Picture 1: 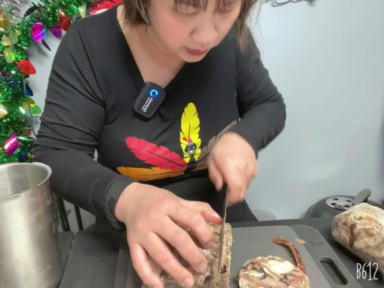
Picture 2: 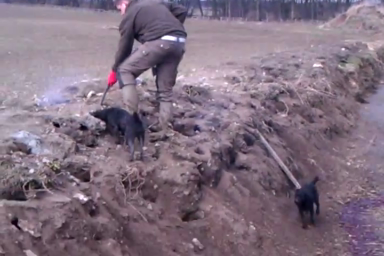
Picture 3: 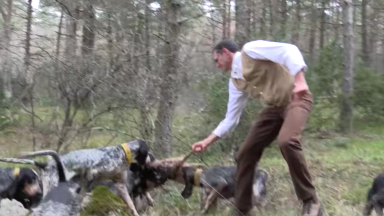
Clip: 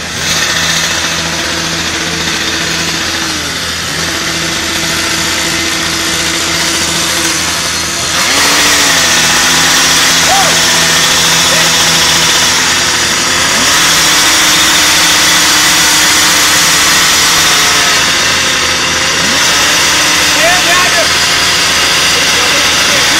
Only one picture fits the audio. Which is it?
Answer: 2